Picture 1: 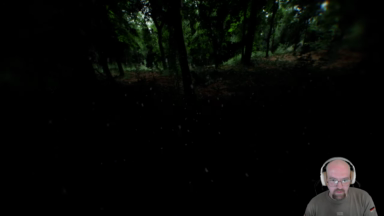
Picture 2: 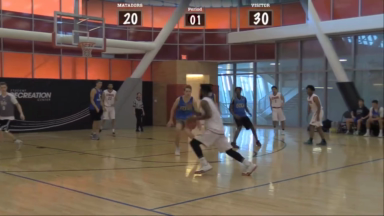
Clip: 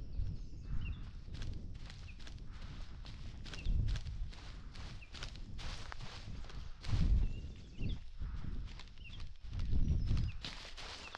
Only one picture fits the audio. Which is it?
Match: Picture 1